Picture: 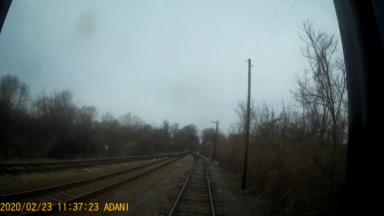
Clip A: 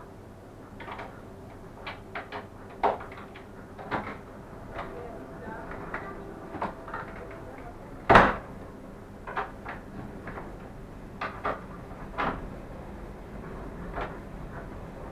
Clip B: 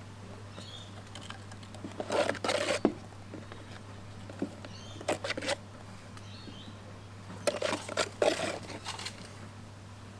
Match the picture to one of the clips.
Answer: A